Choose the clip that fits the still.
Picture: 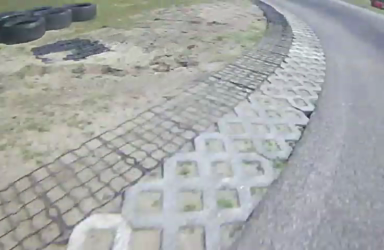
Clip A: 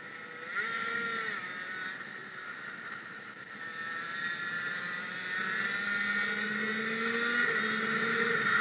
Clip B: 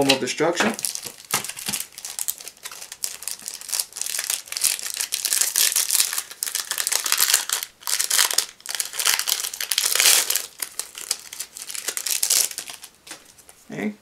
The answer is A